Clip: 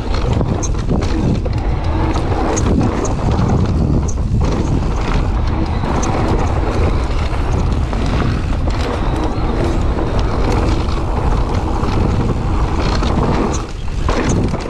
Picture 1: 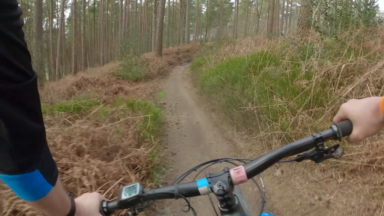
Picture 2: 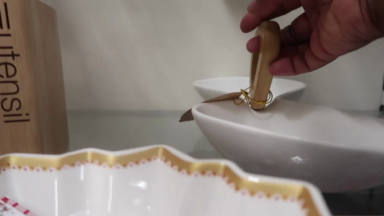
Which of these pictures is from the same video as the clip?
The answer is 1